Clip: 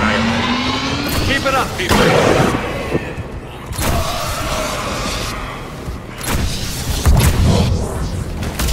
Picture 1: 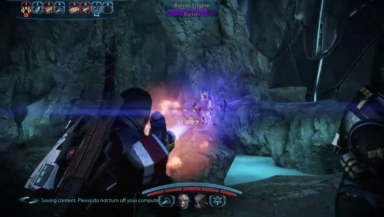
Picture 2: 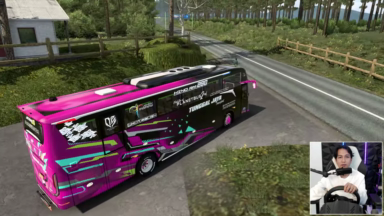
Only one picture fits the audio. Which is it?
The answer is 1